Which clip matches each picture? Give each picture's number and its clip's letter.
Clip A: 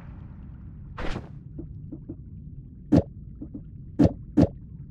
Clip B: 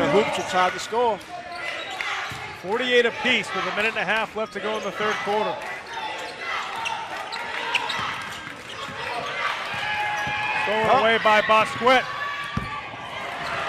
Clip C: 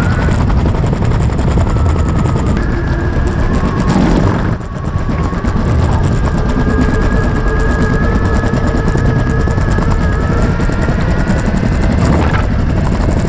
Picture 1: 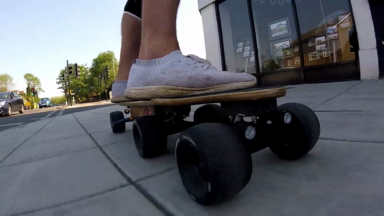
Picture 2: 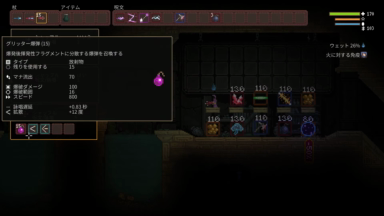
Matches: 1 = C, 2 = A